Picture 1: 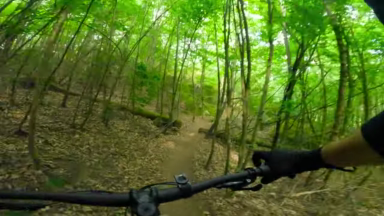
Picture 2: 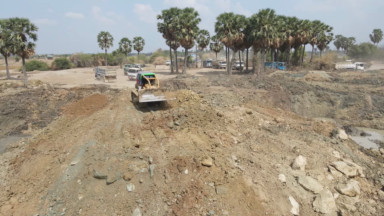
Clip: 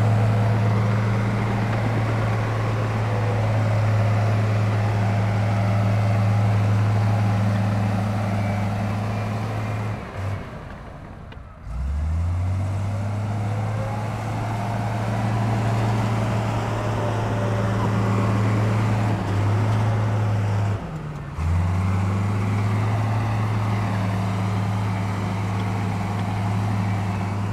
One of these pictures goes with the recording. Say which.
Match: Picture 2